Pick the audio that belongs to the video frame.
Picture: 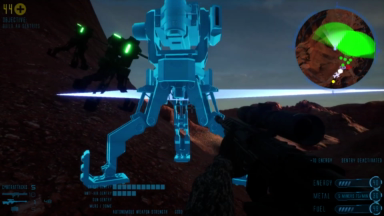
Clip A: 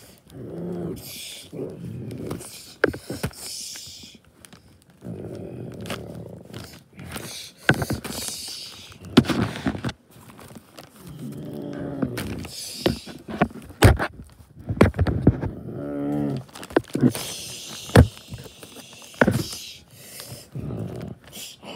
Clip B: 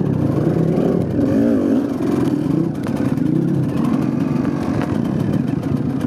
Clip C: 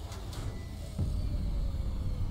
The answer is C